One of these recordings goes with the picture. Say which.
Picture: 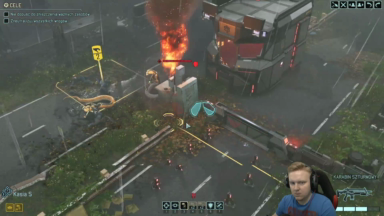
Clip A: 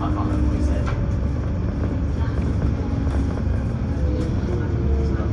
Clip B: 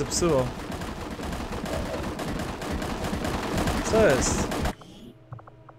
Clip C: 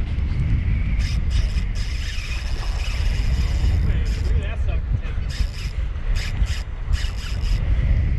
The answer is B